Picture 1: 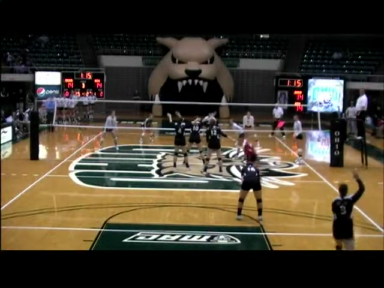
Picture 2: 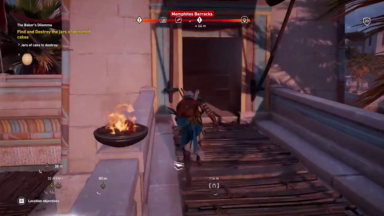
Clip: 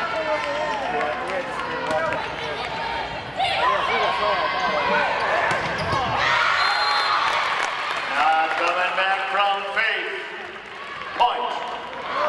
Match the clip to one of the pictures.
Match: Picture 1